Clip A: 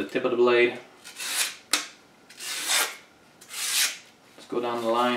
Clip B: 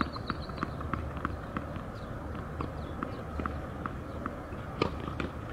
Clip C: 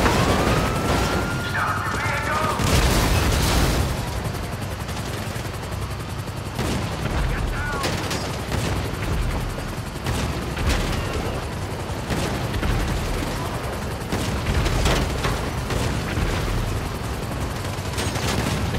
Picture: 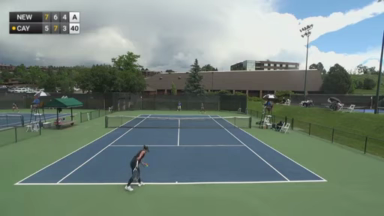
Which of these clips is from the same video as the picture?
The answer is B